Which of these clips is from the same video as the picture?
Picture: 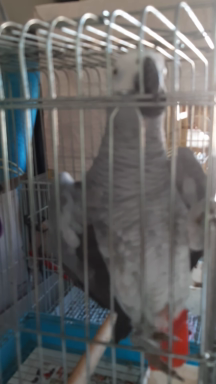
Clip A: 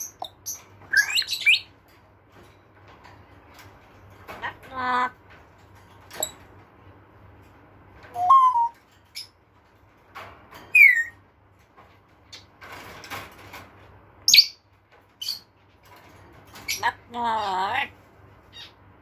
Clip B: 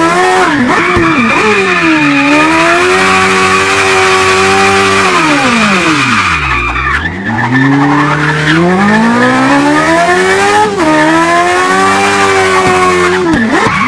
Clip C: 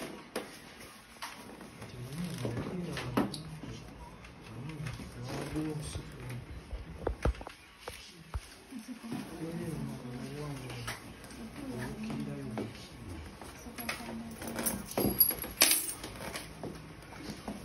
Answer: A